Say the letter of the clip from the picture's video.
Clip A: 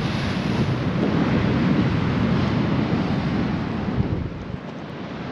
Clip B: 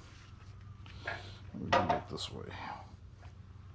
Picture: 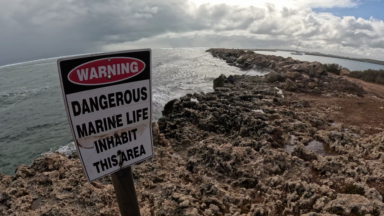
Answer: A